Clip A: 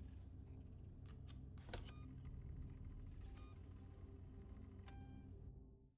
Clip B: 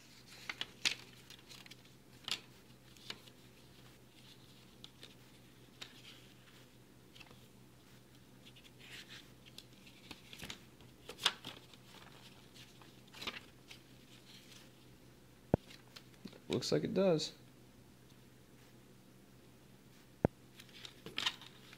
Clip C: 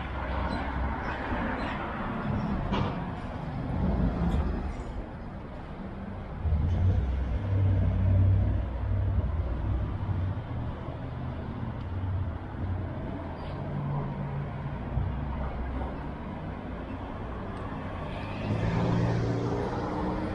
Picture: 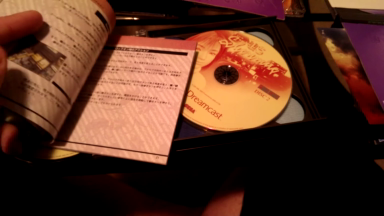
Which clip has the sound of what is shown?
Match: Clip B